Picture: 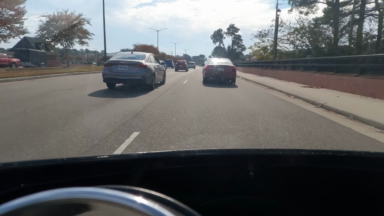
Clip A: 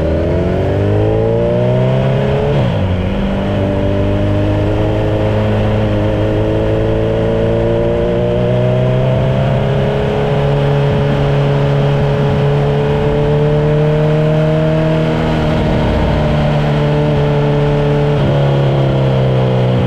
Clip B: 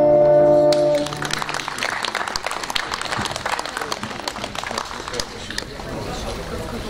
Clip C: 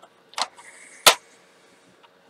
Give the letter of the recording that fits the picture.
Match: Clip A